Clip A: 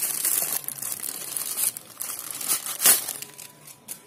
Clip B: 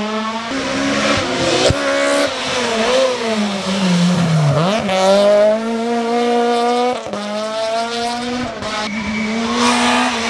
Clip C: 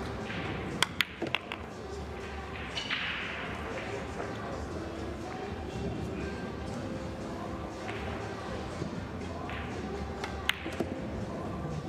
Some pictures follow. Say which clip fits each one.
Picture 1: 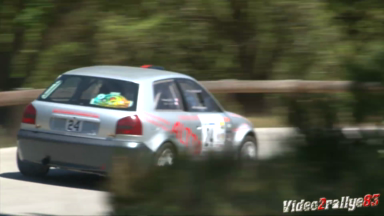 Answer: B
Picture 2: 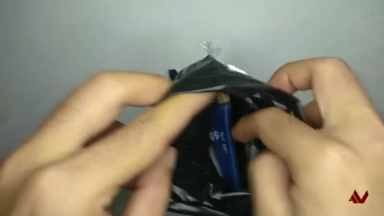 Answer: A